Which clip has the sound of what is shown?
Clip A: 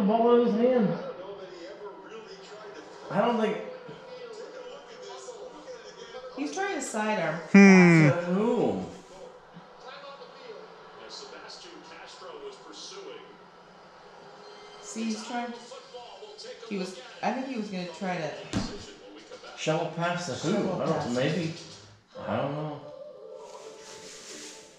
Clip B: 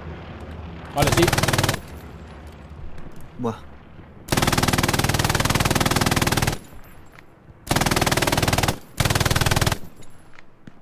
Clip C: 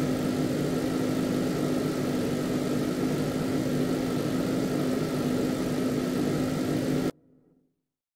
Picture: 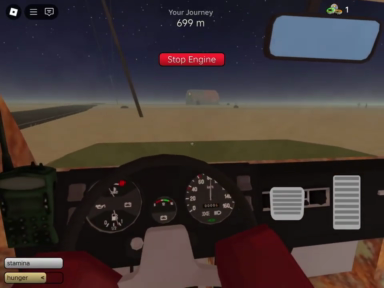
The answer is C